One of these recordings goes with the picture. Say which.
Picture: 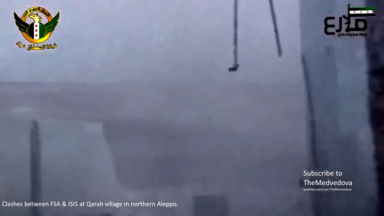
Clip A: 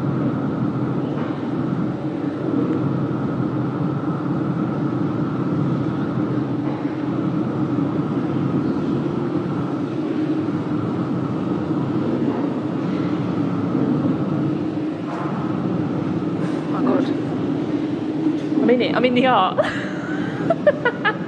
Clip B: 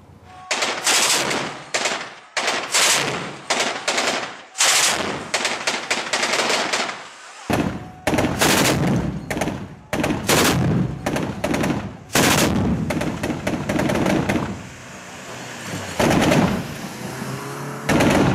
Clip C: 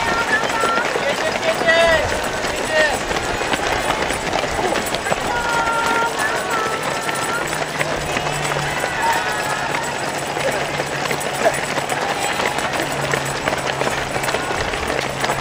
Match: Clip B